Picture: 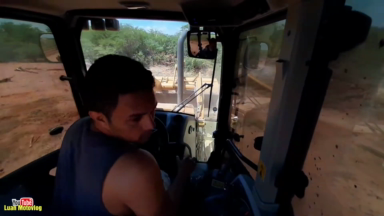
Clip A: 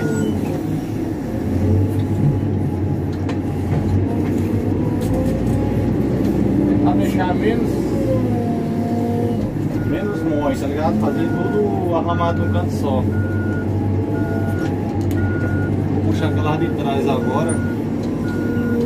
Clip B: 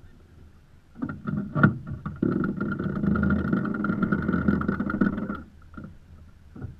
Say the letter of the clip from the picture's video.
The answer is A